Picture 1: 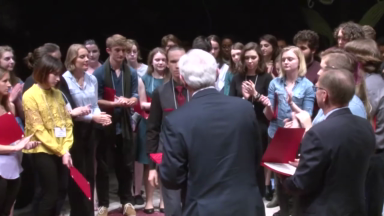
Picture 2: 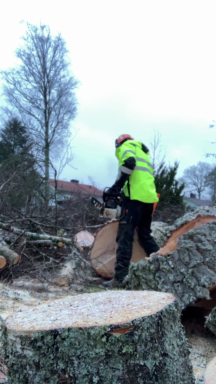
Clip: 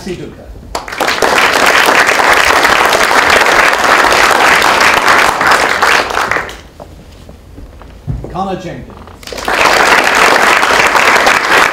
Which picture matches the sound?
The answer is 1